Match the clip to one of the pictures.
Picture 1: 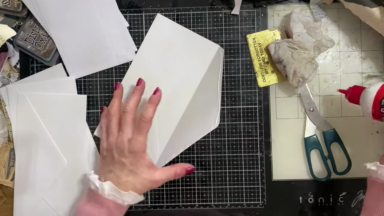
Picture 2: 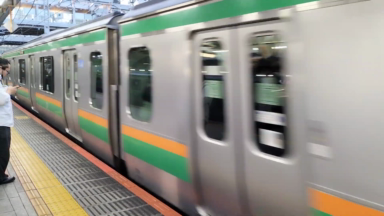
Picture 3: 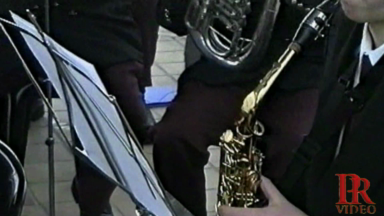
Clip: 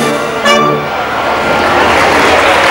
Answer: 3